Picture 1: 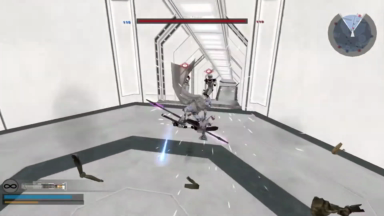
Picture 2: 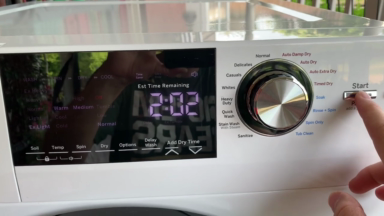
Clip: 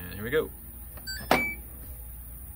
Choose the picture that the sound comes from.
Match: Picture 2